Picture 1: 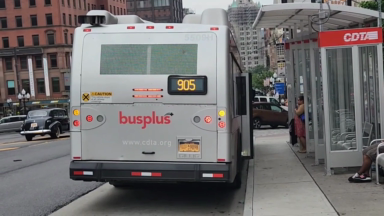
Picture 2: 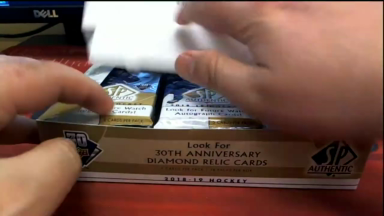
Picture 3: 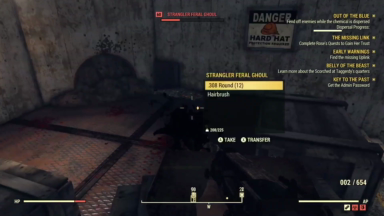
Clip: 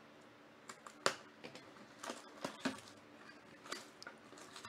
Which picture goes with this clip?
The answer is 2